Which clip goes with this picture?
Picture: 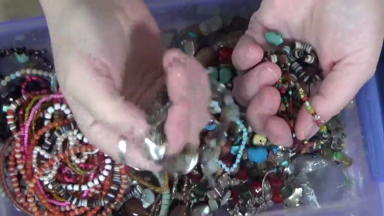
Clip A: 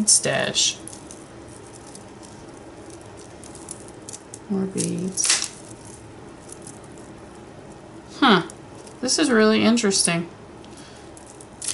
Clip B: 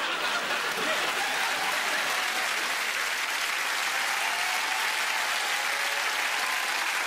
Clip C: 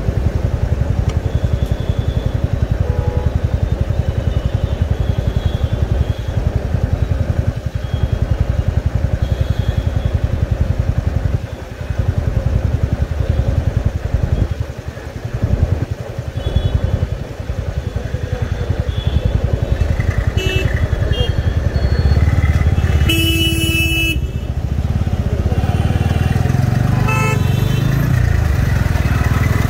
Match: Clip A